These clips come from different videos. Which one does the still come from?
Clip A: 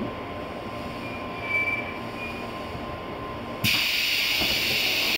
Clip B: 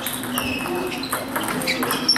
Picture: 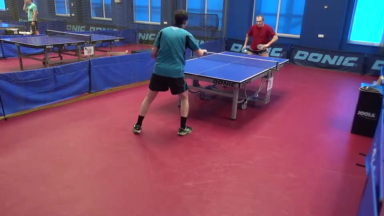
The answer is B